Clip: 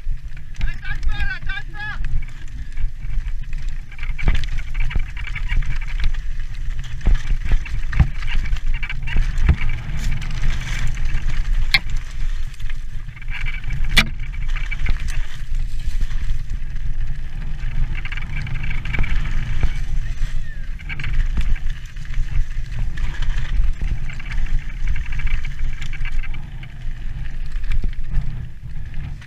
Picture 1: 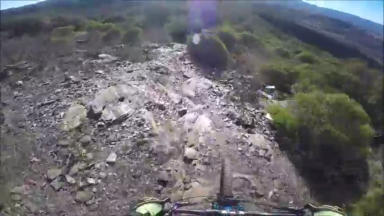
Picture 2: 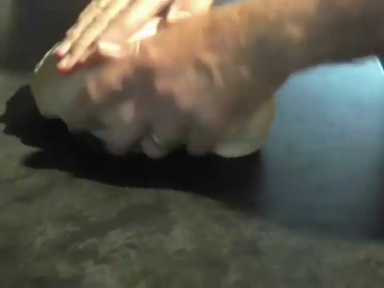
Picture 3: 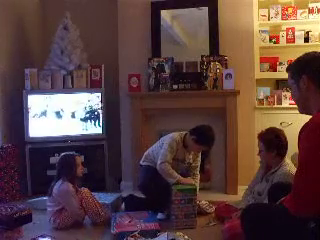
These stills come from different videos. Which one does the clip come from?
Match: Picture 1